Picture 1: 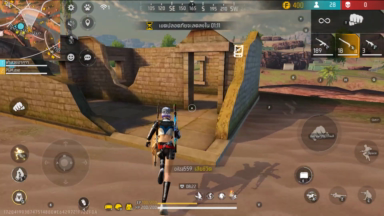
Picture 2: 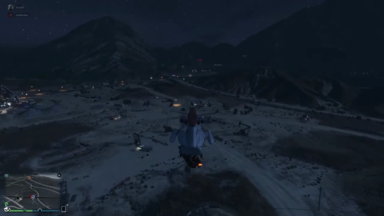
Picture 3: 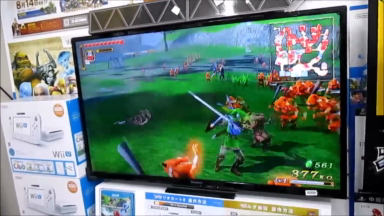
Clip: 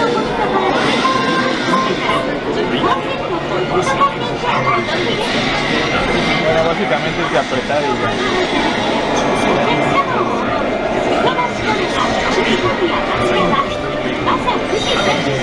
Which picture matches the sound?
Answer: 3